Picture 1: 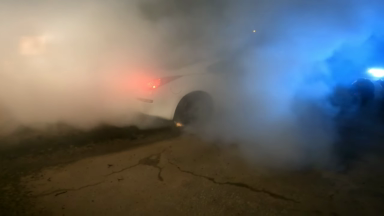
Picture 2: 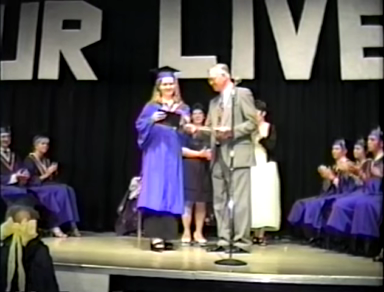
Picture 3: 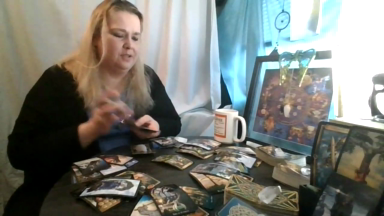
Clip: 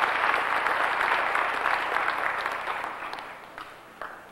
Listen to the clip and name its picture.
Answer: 2